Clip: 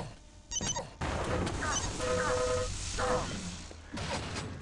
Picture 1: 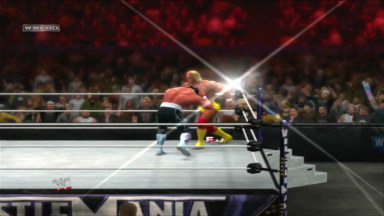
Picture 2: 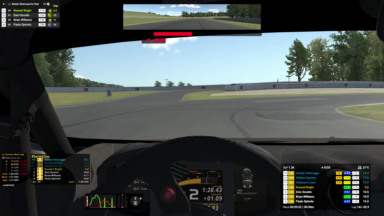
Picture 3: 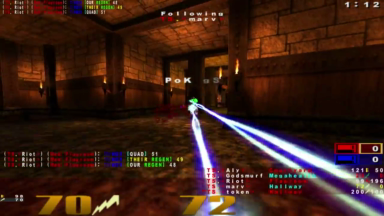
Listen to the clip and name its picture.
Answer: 3